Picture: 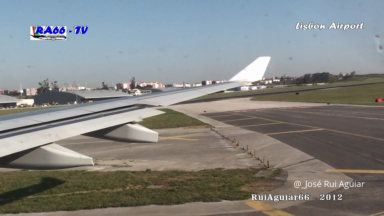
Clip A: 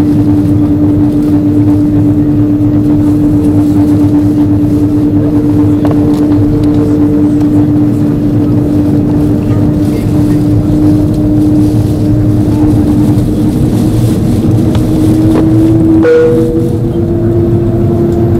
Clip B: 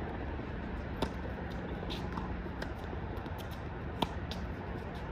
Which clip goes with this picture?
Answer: A